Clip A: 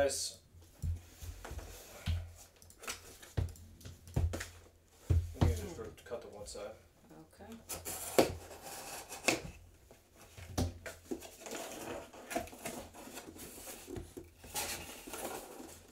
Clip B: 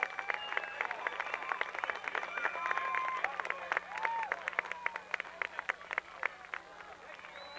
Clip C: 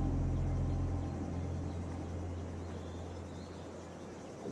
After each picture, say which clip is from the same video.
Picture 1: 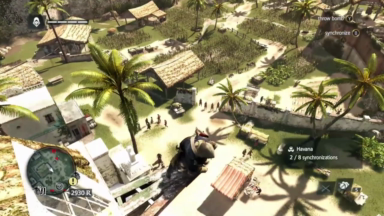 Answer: C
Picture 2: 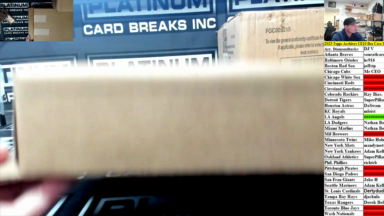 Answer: A